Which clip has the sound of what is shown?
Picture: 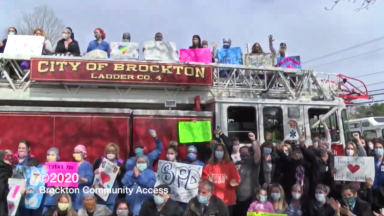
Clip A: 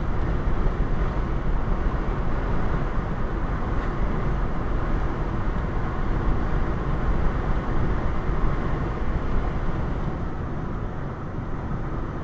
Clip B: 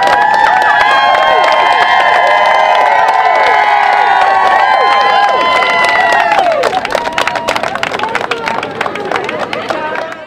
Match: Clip B